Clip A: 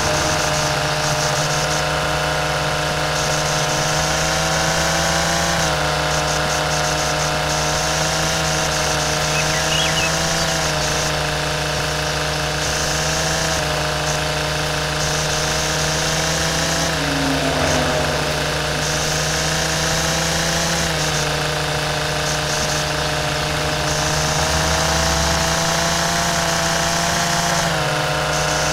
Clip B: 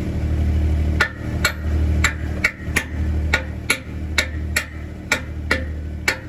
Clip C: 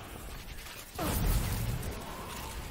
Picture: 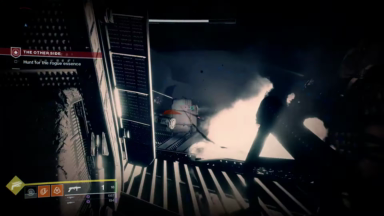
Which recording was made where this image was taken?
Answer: C